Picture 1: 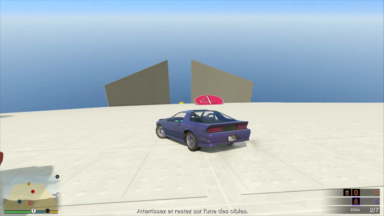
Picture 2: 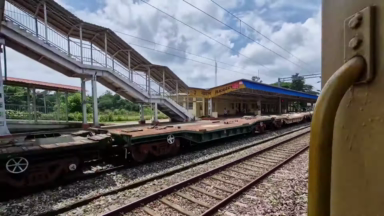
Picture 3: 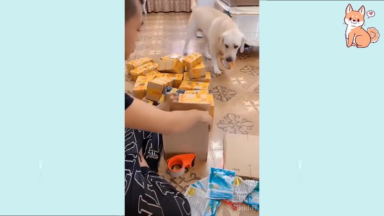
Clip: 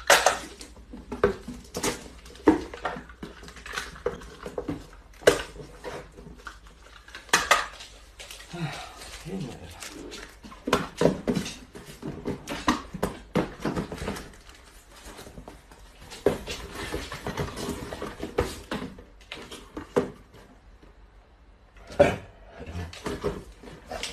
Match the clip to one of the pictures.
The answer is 3